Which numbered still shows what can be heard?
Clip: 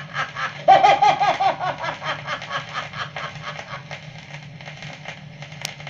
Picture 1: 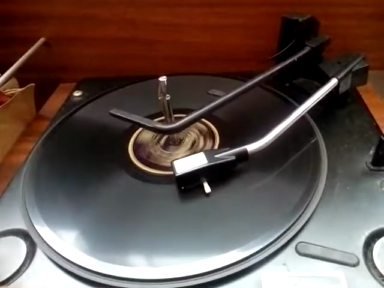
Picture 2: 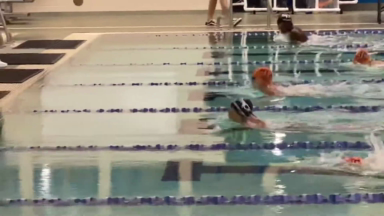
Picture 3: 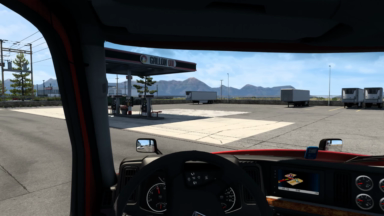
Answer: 1